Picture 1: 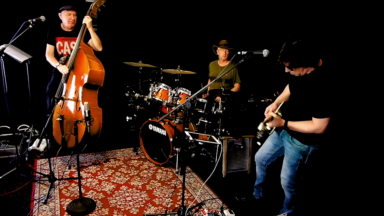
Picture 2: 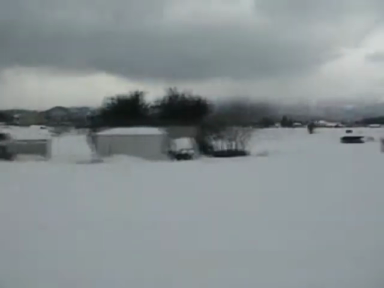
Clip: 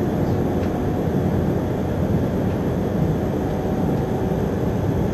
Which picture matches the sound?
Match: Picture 2